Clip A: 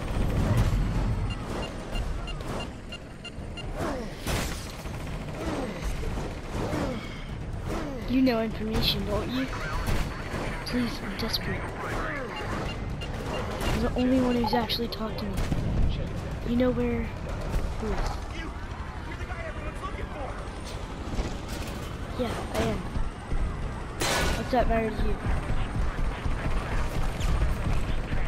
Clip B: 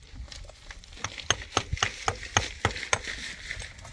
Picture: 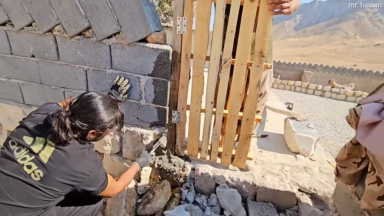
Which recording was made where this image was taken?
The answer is B